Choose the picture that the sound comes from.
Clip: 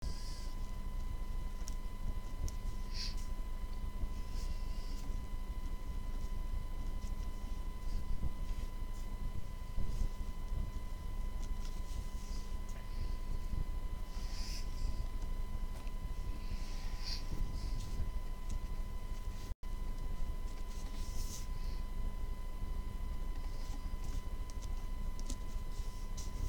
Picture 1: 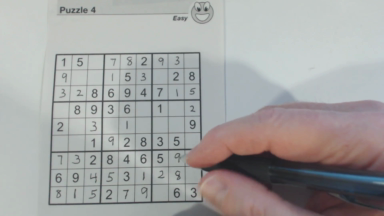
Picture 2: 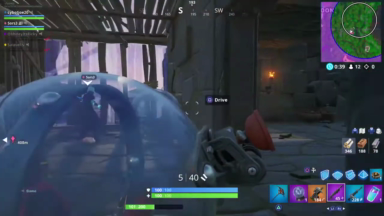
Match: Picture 1